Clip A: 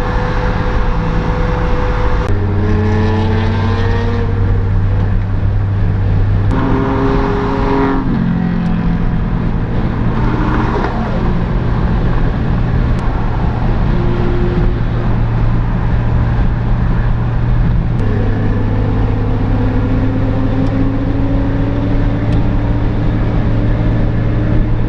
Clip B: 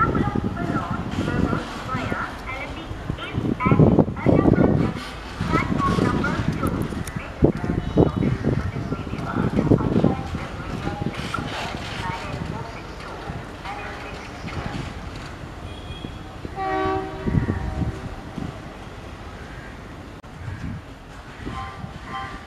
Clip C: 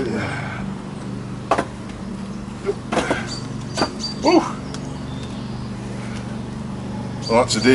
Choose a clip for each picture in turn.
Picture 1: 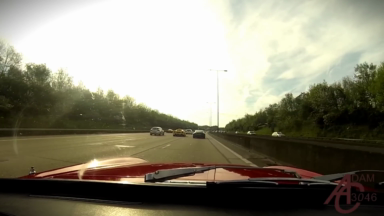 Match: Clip A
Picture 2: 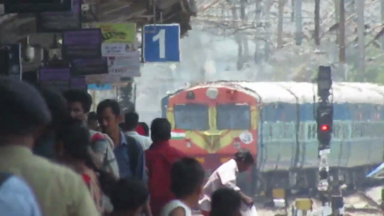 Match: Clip B